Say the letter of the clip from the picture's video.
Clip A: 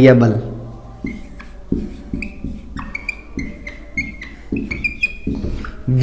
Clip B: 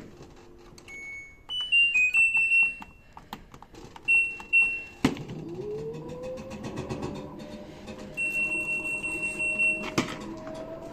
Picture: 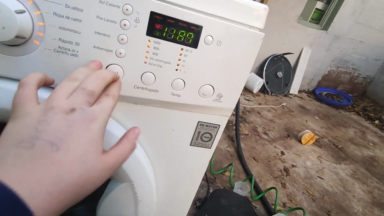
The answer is B